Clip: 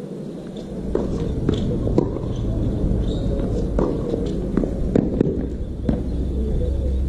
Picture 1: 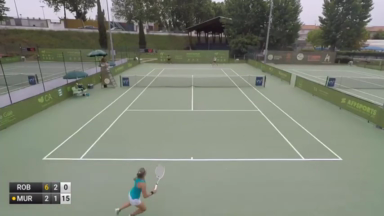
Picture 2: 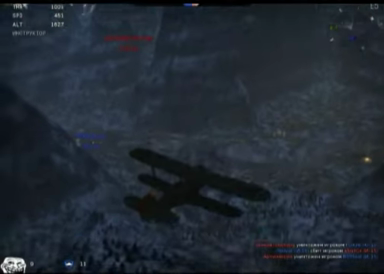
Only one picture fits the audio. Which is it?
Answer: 1